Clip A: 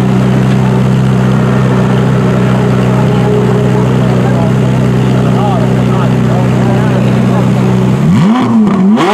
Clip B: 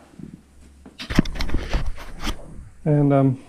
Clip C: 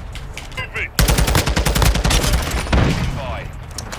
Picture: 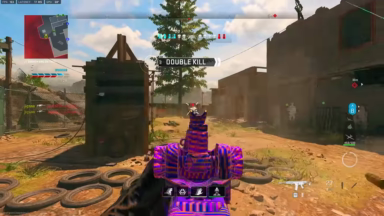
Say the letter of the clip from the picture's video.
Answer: C